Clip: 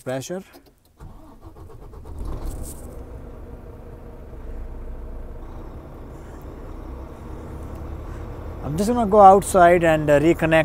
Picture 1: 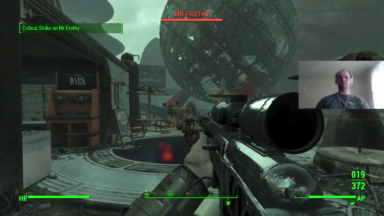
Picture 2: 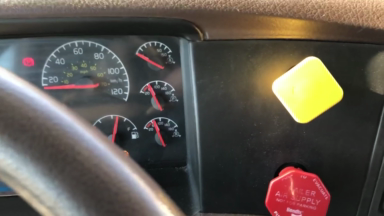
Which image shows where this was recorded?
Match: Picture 2